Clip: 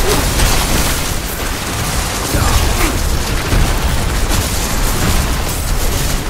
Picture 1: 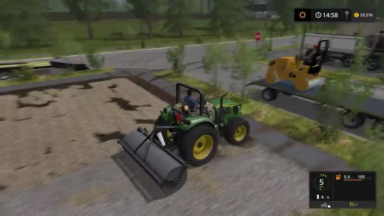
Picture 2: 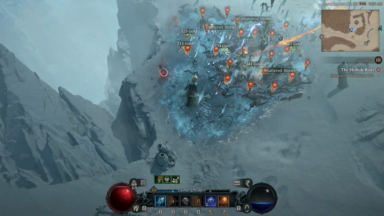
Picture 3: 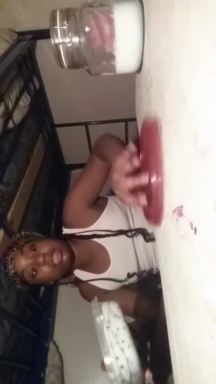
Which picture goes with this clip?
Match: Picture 2